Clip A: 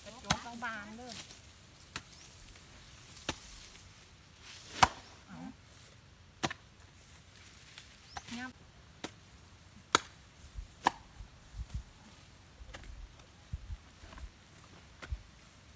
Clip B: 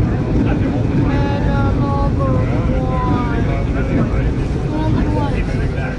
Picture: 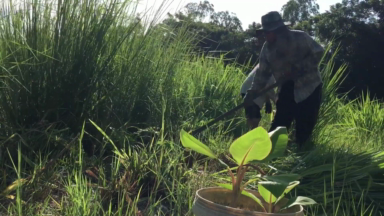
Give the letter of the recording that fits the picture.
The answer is A